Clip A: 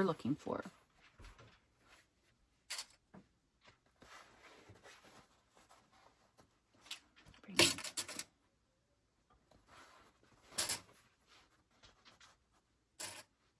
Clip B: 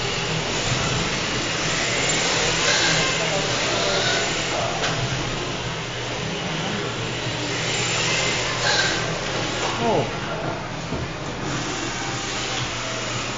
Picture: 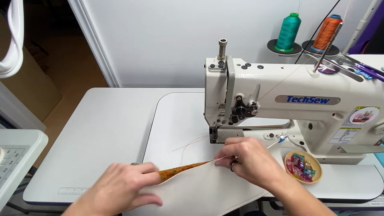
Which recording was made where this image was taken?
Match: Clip A